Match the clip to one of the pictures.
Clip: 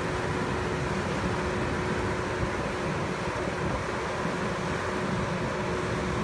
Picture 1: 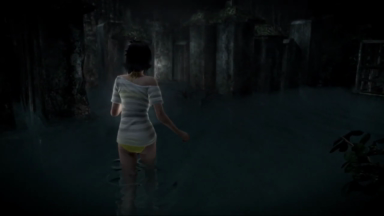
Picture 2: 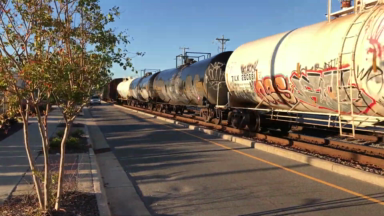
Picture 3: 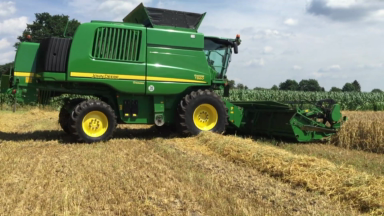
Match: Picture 3